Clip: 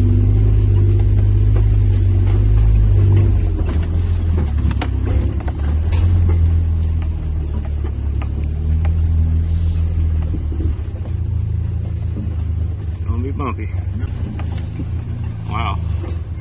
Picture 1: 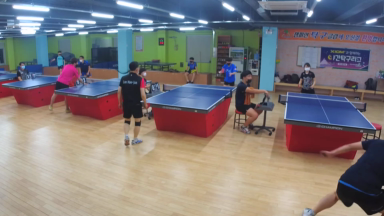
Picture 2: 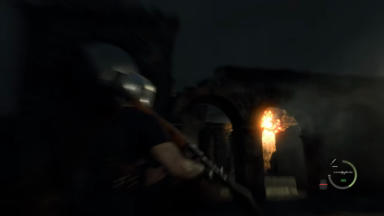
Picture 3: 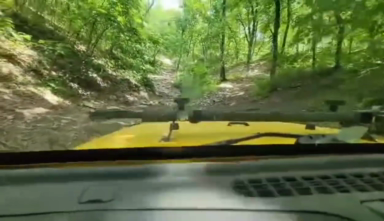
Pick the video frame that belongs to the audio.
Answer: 3